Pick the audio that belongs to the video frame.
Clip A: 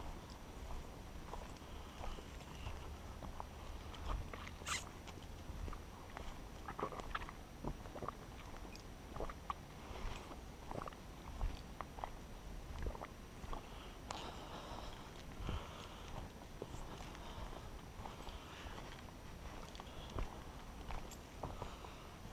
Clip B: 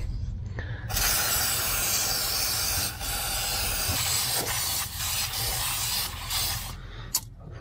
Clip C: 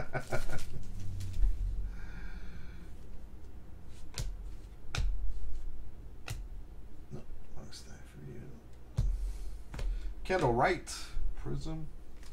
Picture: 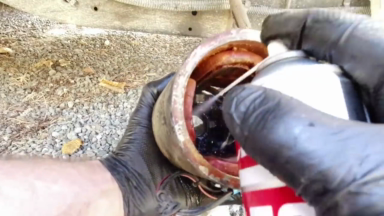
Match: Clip B